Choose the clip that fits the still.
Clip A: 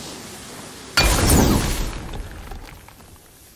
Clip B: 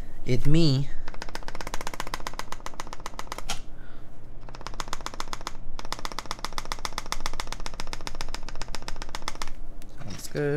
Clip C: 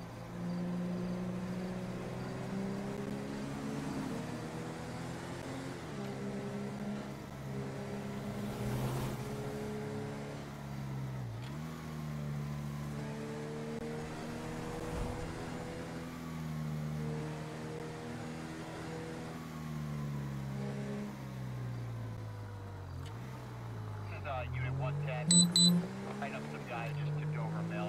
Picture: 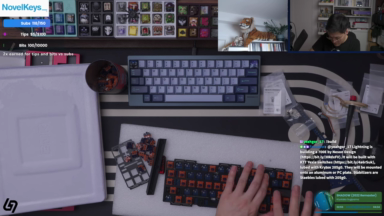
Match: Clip B